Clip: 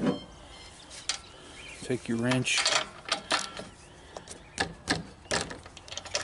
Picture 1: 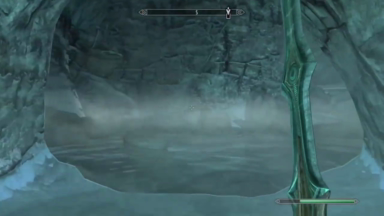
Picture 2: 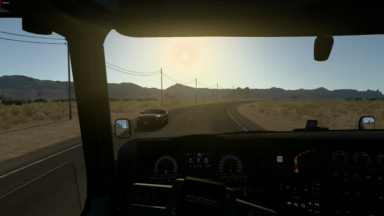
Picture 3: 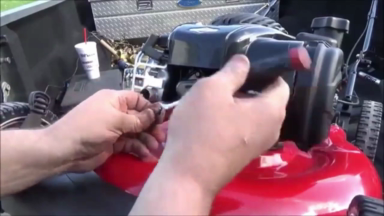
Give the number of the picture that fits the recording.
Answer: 3